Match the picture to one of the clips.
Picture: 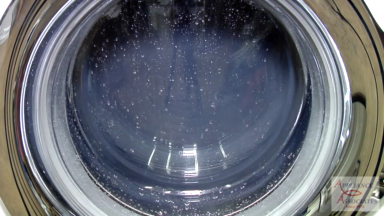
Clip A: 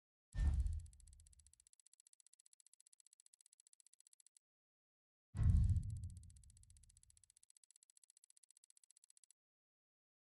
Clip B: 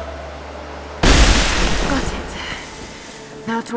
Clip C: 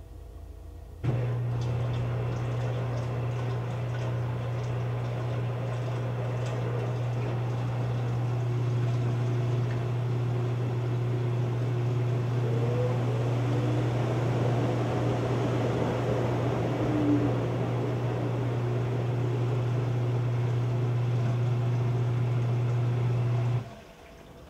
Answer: C